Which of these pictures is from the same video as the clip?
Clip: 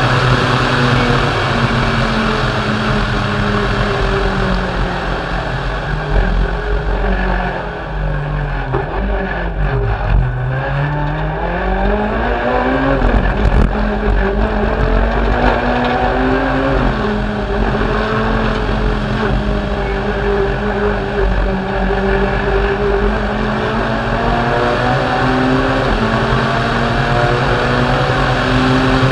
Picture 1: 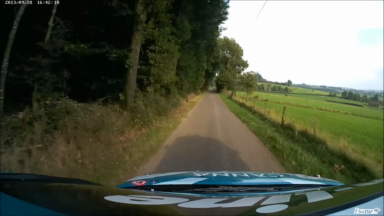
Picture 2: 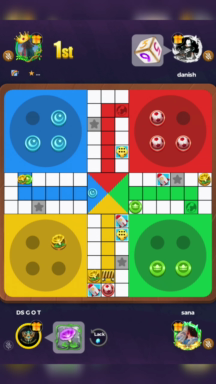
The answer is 1